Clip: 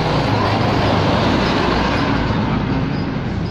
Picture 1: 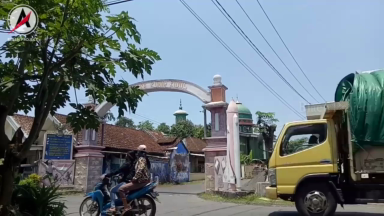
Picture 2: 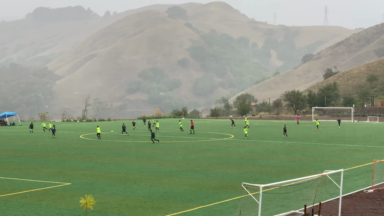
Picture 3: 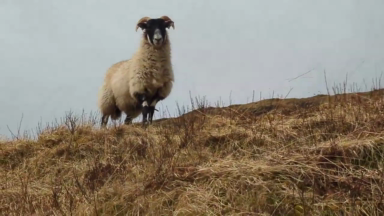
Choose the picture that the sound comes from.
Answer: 1